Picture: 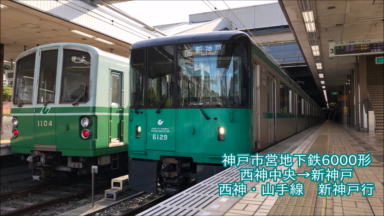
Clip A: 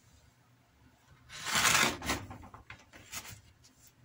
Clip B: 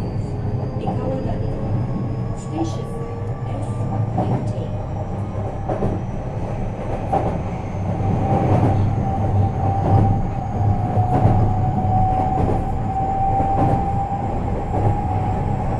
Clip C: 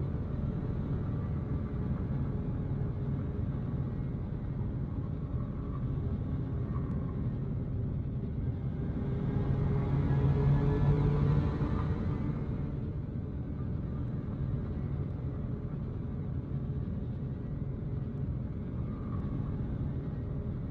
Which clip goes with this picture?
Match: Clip B